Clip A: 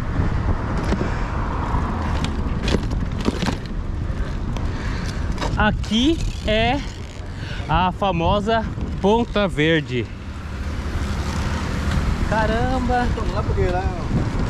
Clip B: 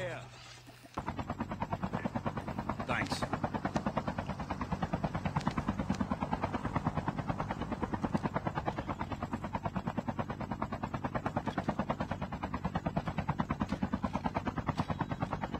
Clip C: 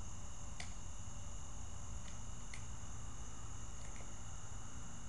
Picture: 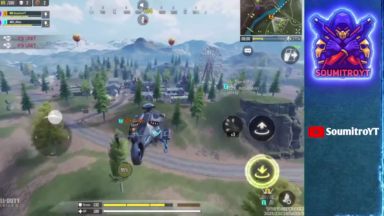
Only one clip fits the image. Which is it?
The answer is B